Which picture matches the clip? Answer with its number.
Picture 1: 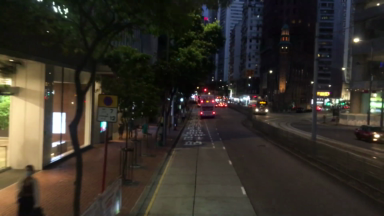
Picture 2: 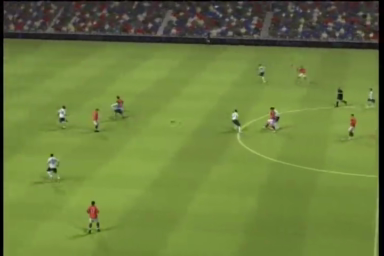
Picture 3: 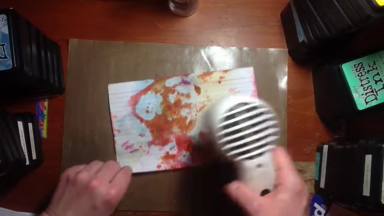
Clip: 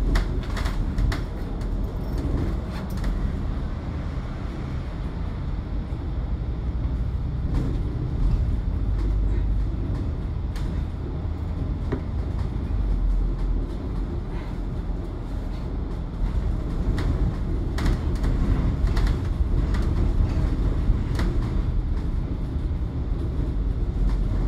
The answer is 1